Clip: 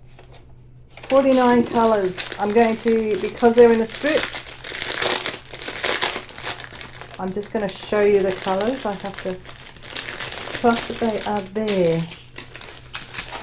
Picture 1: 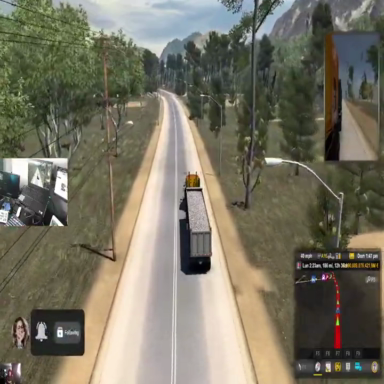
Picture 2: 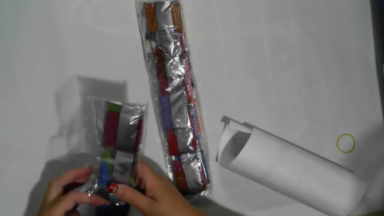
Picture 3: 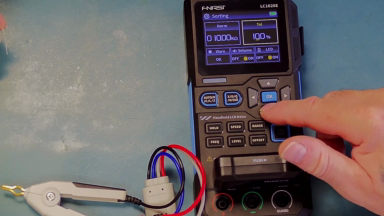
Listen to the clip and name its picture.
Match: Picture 2